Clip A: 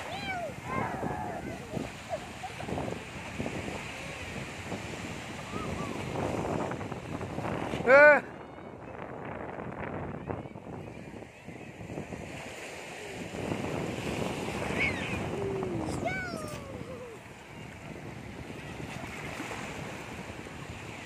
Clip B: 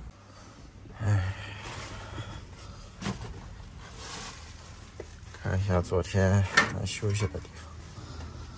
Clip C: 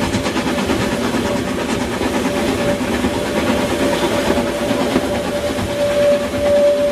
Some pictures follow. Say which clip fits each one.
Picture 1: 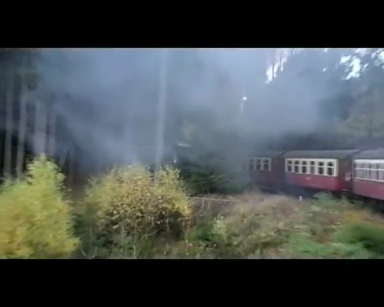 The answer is C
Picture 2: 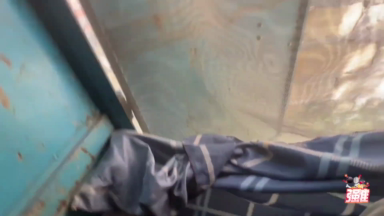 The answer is B